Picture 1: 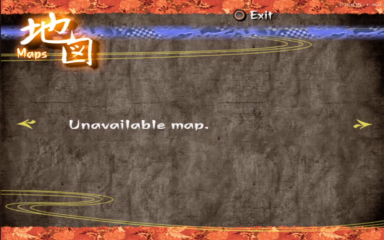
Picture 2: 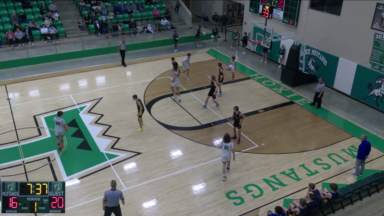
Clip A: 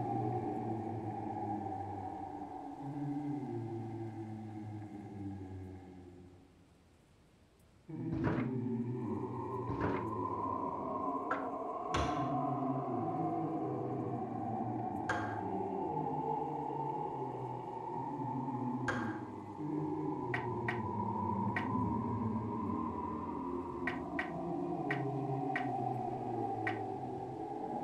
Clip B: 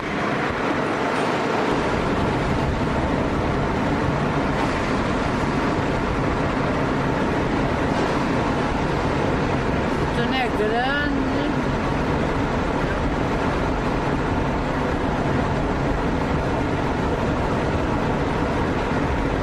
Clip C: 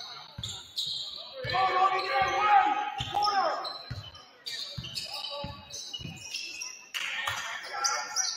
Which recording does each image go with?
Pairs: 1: A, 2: C